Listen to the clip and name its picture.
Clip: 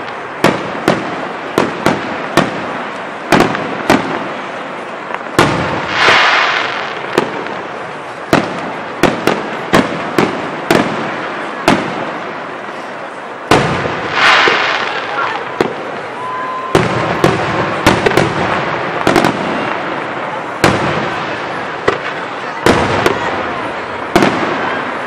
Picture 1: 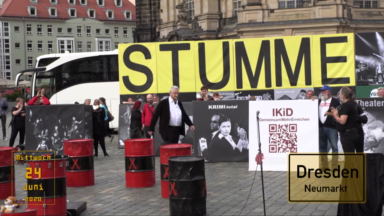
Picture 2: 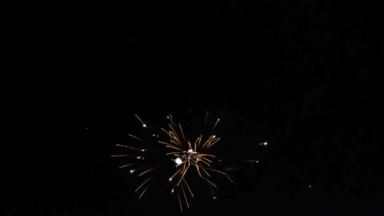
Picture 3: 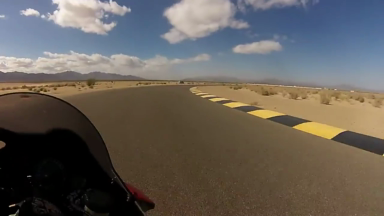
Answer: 2